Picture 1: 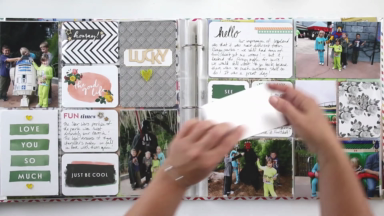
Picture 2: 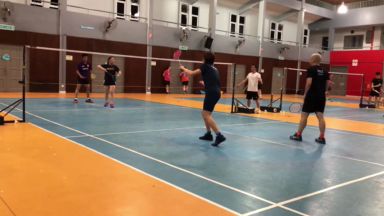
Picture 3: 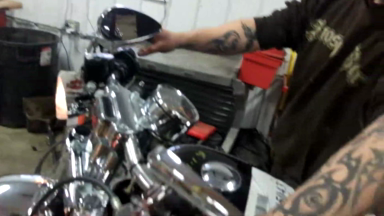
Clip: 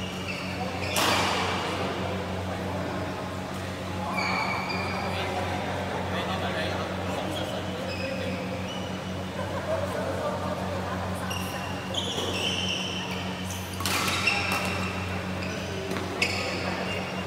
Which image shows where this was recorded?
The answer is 2